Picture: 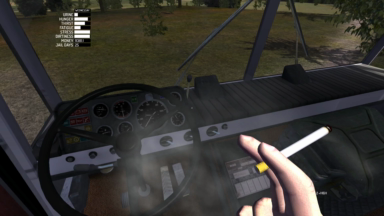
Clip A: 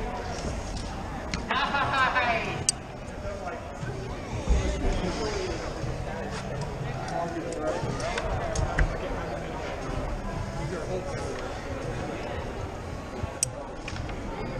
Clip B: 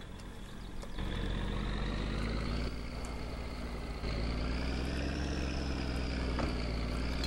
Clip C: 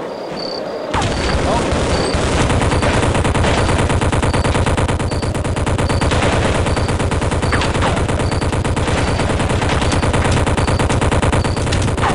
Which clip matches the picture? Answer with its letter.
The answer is B